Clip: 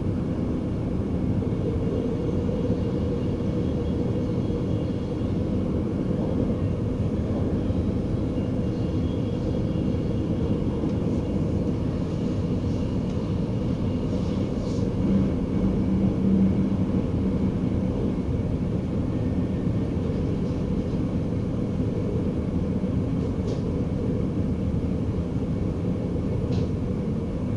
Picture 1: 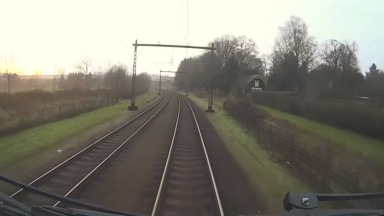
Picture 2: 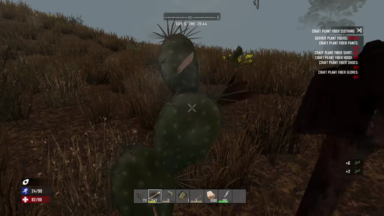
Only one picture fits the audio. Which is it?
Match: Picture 1